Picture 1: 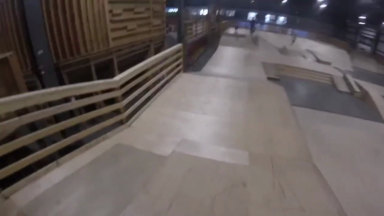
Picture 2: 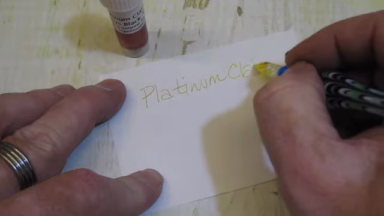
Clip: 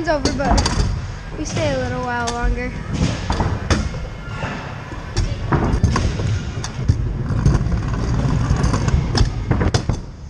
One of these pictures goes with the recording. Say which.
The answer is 1